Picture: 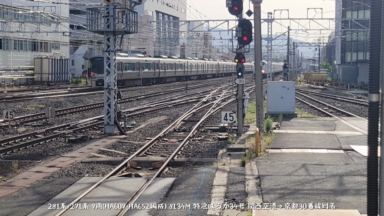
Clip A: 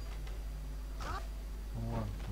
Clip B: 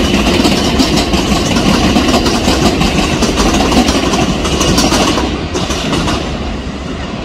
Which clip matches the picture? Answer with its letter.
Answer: B